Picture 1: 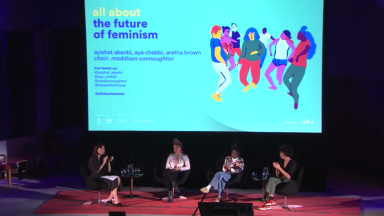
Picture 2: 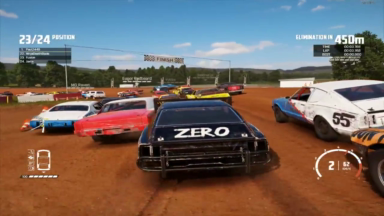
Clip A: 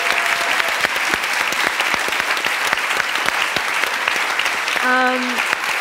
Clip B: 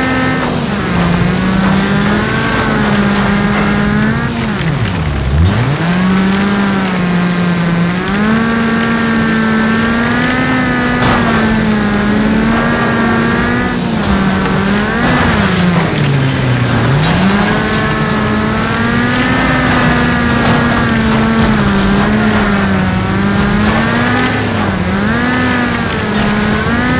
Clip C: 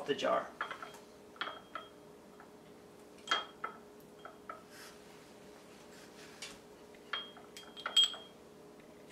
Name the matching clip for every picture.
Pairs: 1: A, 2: B